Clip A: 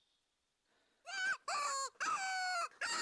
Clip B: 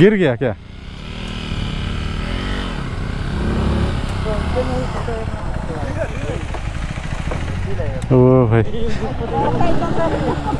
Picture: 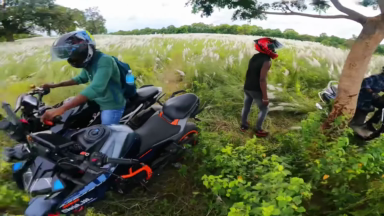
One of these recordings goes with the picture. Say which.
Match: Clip B